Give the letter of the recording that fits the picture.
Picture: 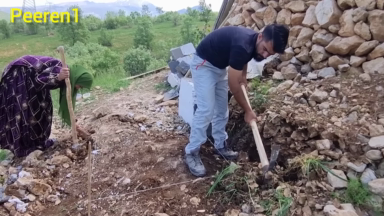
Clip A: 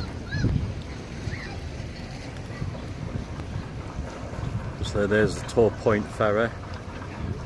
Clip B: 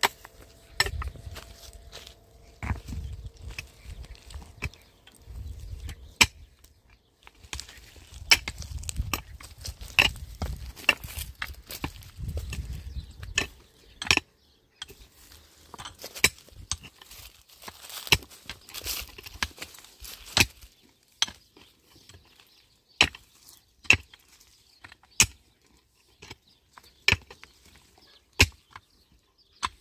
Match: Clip B